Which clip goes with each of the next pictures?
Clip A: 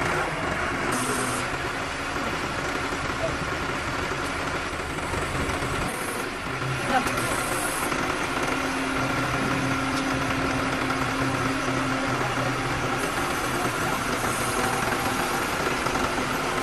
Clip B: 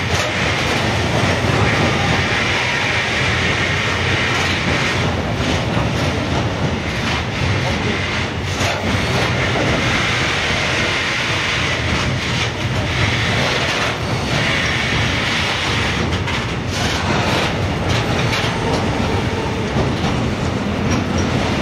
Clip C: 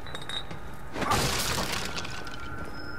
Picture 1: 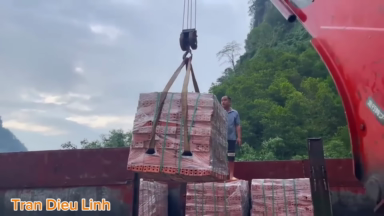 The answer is A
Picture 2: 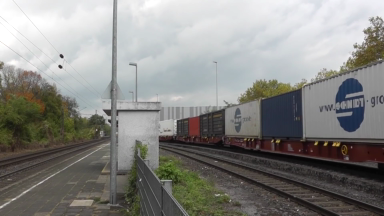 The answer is B